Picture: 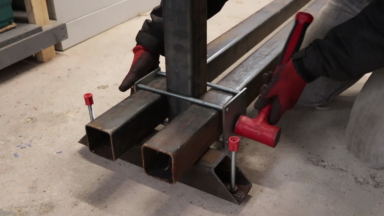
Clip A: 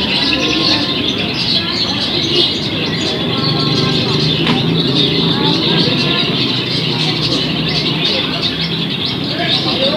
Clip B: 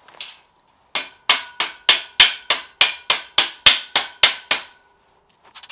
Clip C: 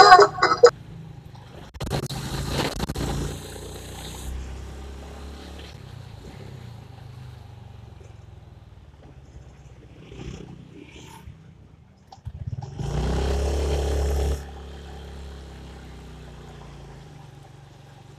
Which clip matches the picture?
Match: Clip B